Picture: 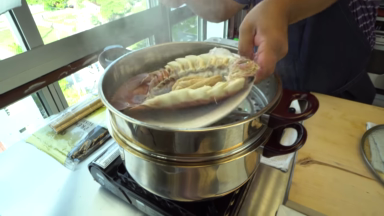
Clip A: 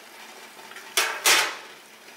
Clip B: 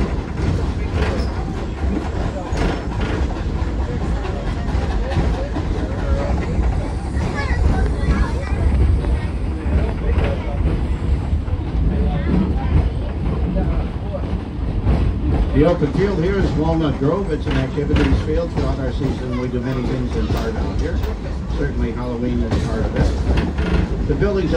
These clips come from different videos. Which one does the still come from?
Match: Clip A